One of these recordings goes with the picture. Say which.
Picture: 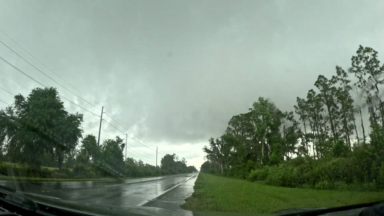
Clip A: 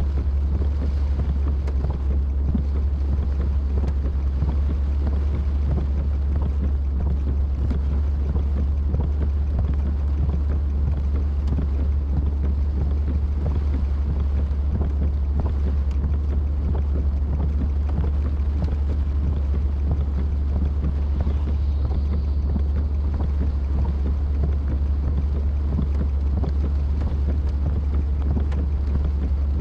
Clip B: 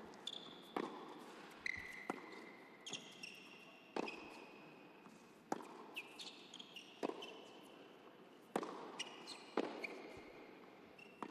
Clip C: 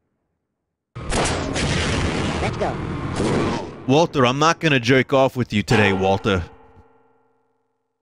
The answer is A